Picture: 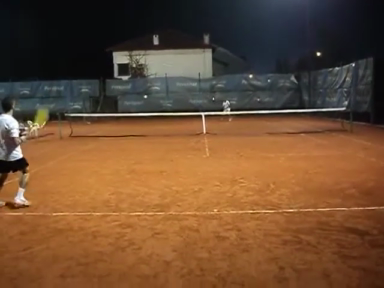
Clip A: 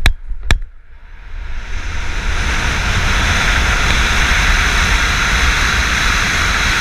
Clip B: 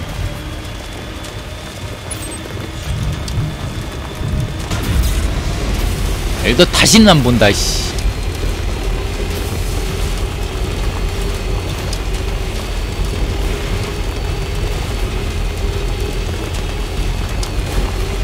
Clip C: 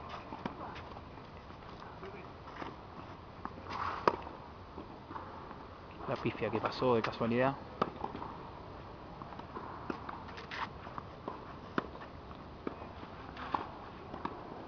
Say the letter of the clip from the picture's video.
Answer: C